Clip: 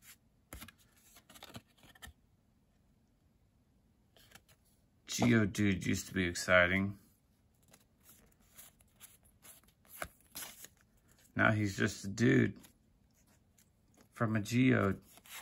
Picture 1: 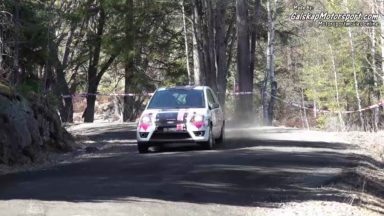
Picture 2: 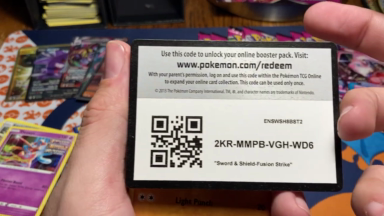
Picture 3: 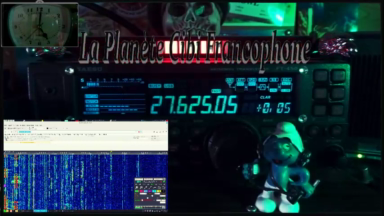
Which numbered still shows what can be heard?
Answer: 2